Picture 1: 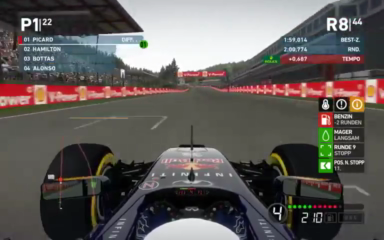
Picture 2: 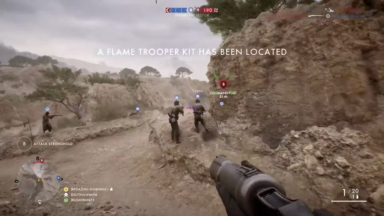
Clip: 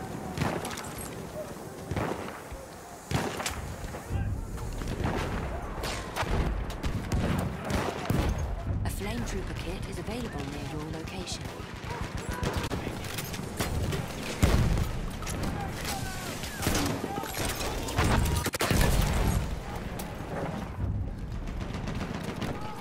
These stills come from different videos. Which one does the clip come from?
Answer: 2